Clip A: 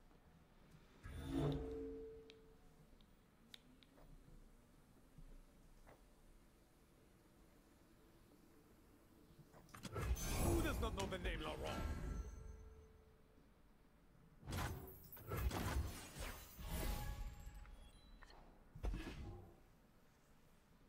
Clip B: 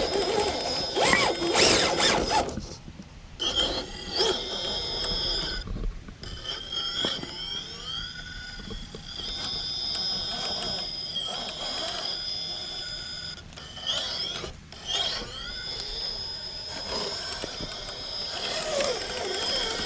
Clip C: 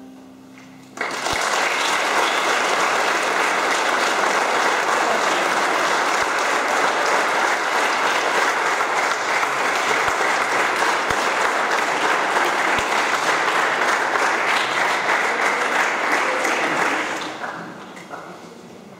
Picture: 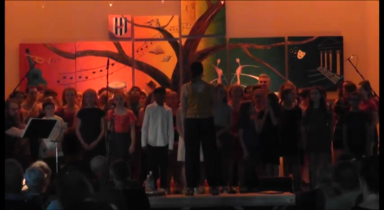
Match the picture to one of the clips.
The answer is C